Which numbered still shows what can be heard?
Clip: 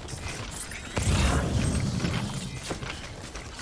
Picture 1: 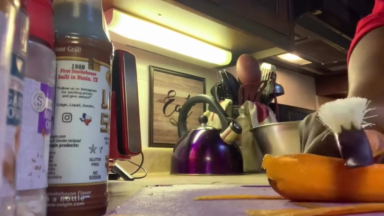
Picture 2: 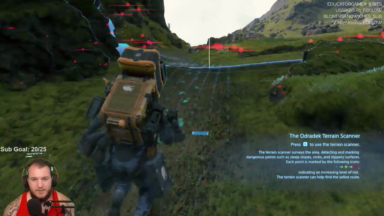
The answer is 2